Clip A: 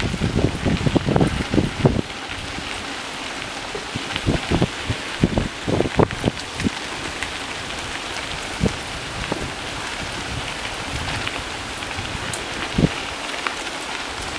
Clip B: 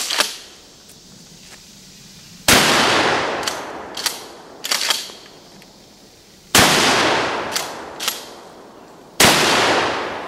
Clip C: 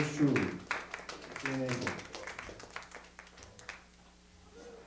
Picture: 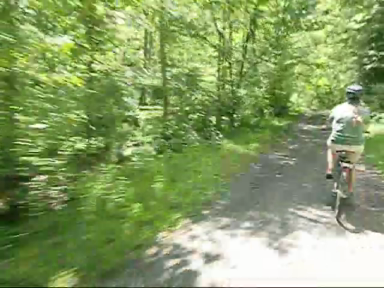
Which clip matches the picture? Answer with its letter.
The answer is A